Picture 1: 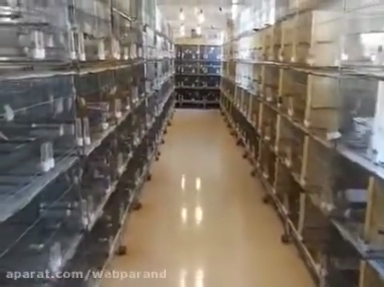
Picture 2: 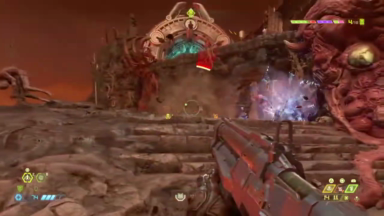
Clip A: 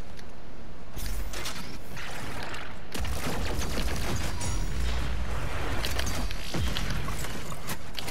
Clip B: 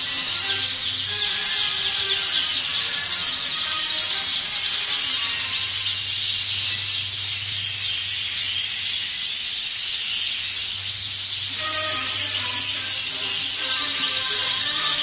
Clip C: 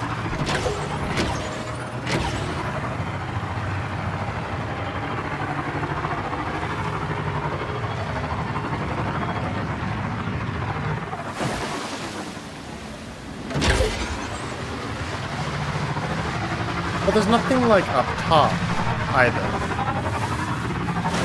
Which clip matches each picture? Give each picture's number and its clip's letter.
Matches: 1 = B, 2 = A